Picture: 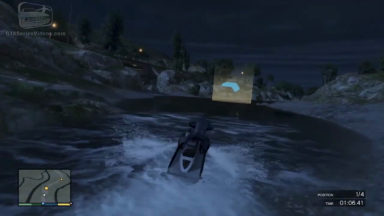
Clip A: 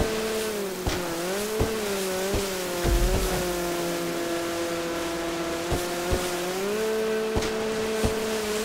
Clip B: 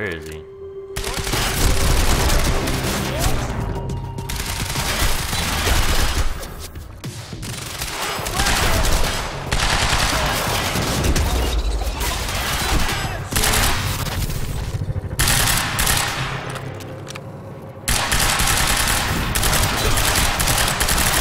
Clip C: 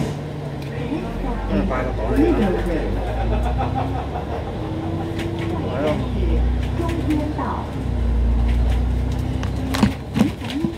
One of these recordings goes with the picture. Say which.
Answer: A